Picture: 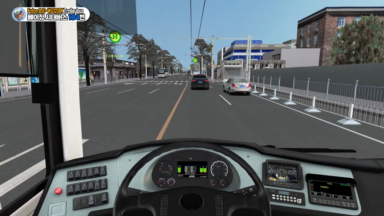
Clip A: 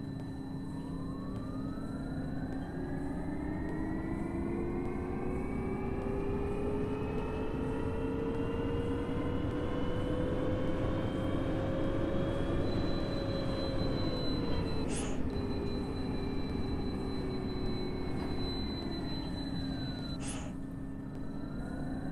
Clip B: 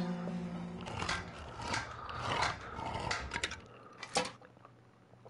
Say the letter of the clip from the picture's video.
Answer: A